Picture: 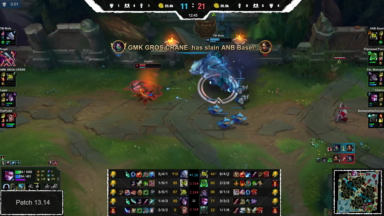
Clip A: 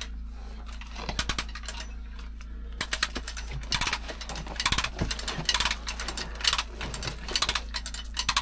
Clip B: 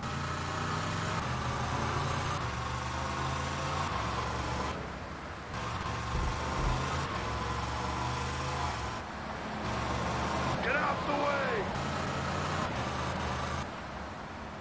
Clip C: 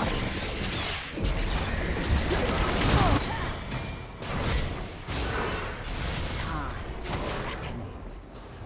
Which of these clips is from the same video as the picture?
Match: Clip C